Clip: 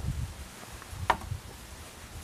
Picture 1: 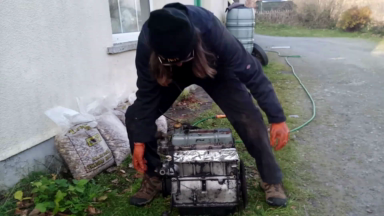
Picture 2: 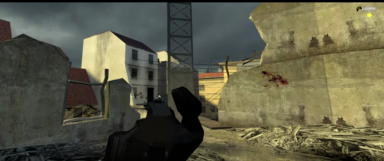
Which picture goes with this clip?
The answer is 1